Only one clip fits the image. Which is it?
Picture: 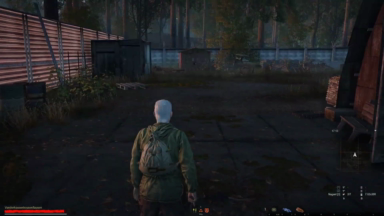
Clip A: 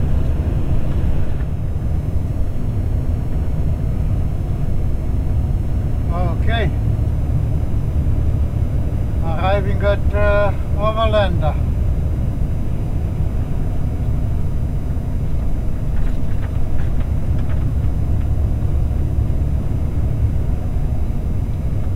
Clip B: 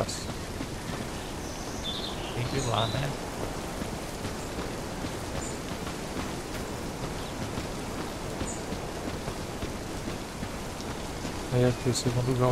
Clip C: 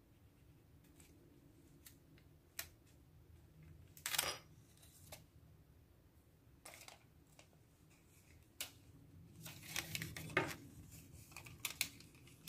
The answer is B